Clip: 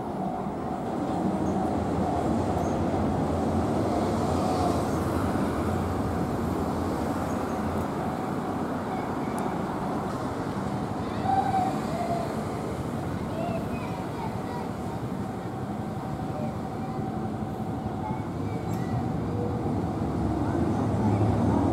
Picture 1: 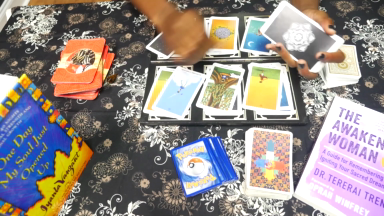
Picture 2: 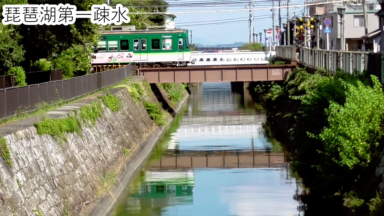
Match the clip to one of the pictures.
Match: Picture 2